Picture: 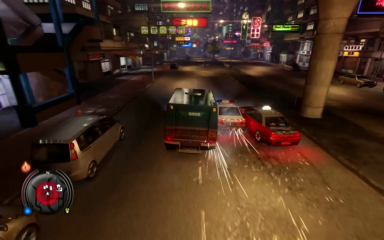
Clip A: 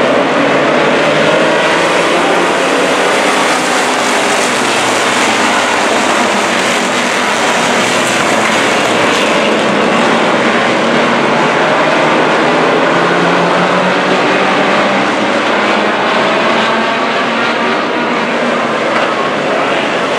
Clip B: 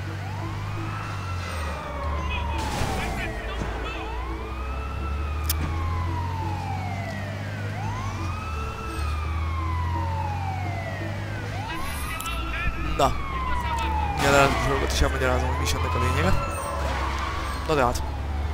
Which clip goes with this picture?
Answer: B